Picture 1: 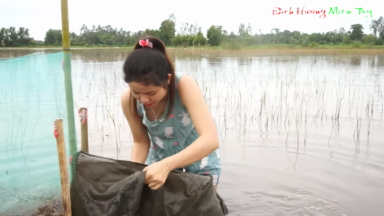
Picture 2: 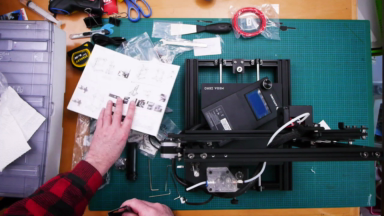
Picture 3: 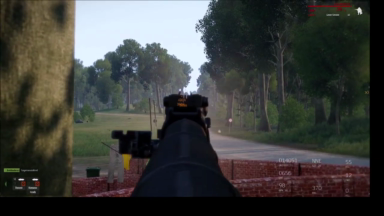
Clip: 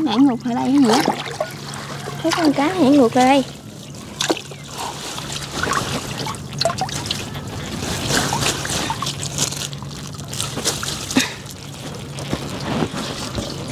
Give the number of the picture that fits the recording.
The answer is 1